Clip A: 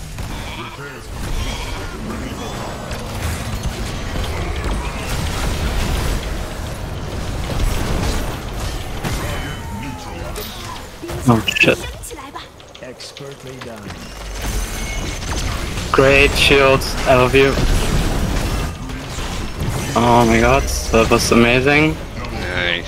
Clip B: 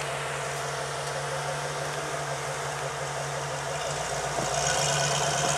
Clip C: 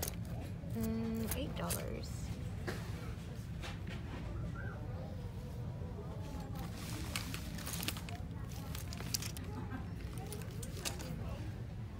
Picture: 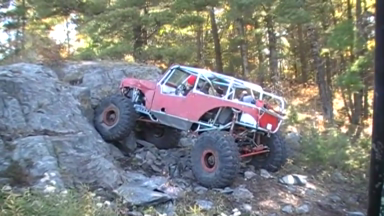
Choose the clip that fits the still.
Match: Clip B